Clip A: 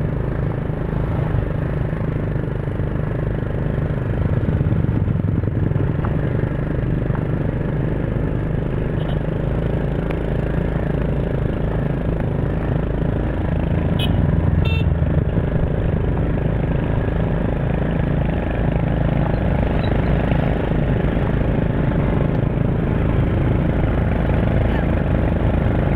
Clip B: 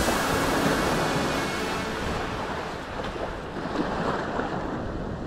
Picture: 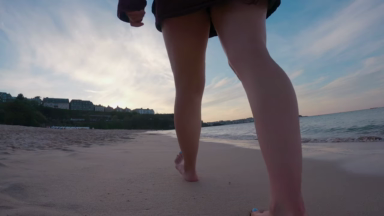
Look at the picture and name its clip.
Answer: B